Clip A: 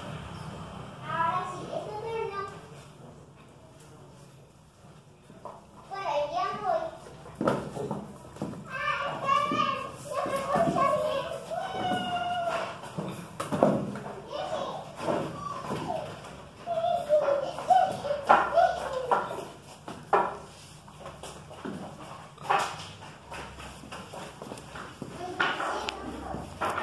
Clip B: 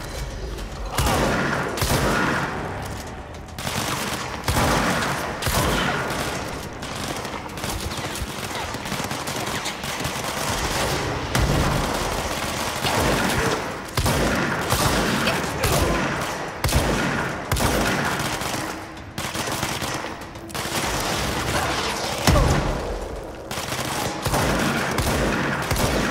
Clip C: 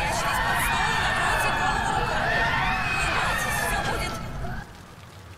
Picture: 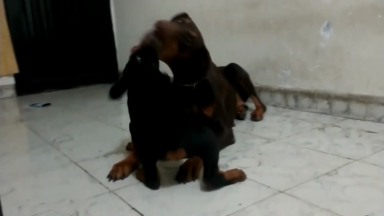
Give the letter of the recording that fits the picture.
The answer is A